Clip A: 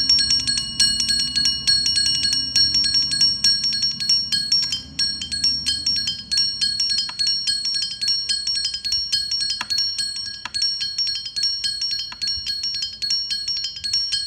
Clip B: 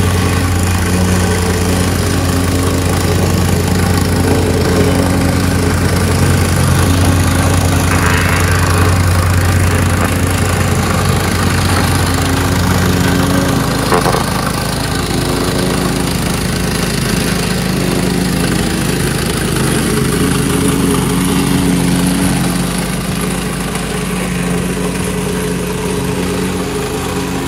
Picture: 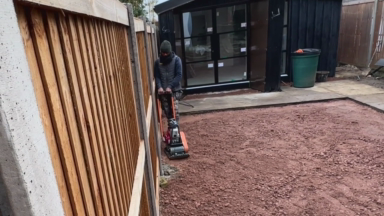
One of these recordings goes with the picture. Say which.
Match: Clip B